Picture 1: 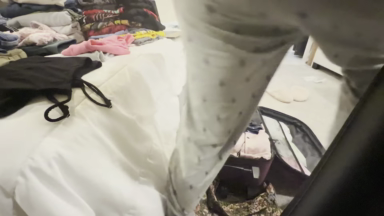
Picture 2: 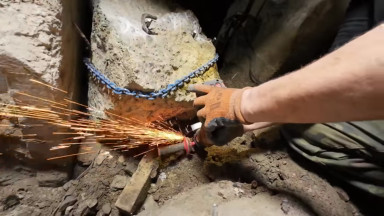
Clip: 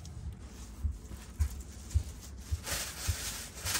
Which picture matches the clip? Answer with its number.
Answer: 1